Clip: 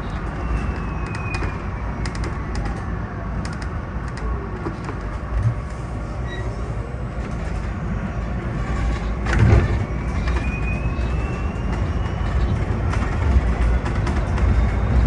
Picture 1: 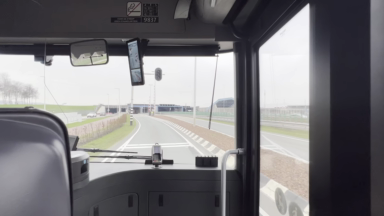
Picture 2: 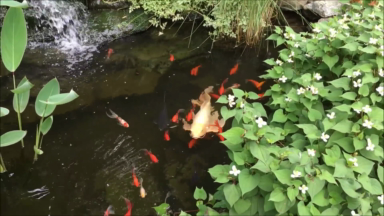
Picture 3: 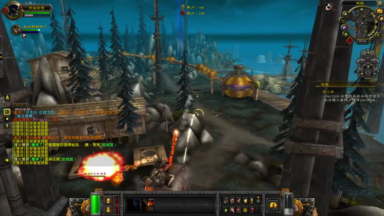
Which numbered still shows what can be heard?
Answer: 1